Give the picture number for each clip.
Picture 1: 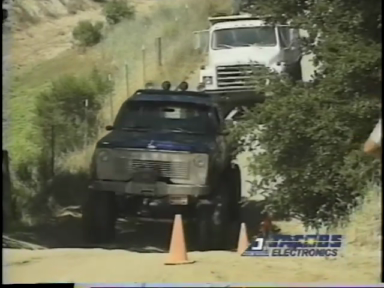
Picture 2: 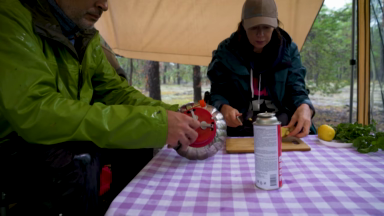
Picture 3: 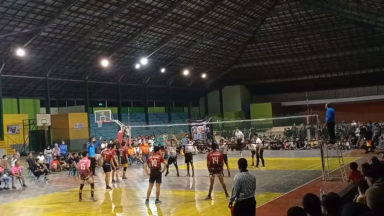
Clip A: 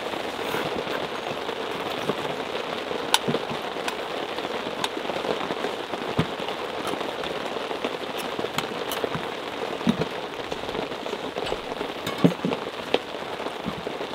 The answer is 2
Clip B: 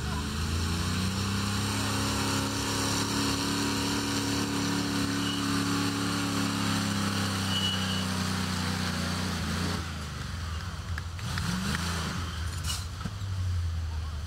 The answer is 1